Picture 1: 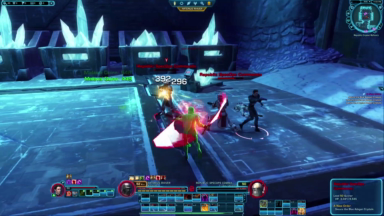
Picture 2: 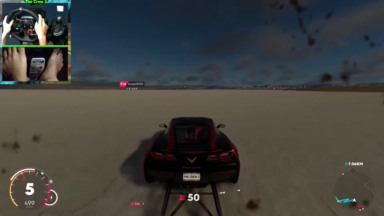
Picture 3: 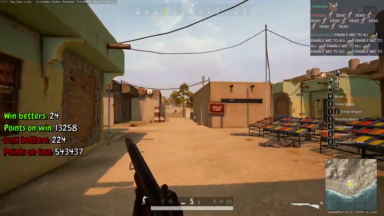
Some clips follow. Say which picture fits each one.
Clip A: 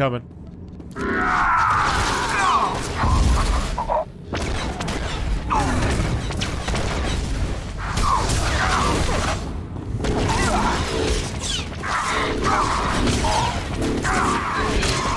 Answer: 1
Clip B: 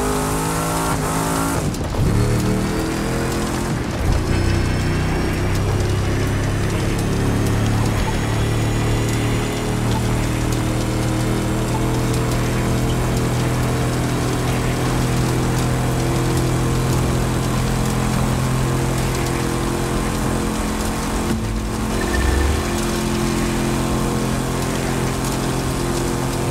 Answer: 2